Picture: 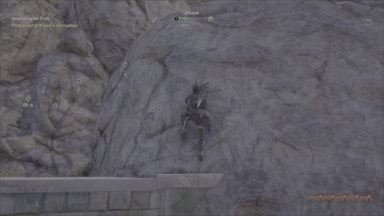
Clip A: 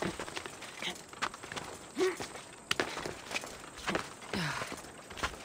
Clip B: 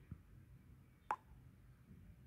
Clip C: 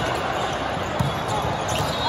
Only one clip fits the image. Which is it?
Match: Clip A